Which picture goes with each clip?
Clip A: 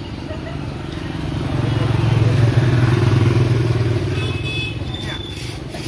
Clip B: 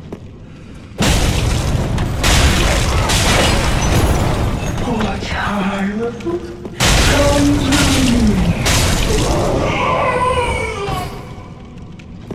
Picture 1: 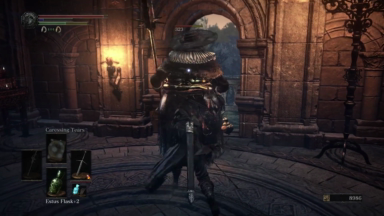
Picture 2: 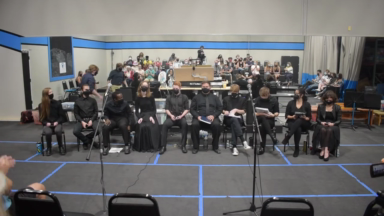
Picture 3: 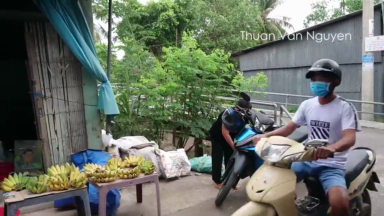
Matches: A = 3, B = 1